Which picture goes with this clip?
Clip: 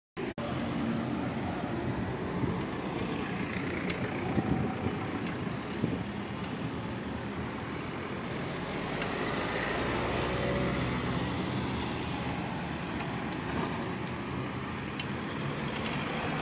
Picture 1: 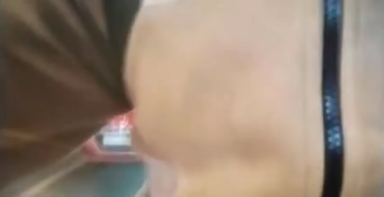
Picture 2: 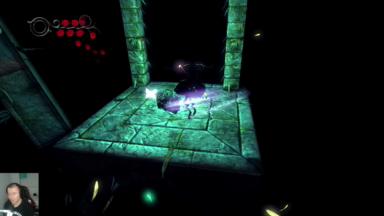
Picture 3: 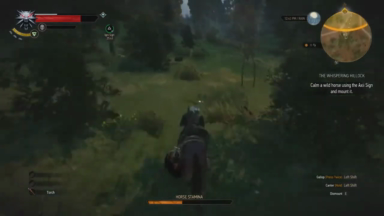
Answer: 1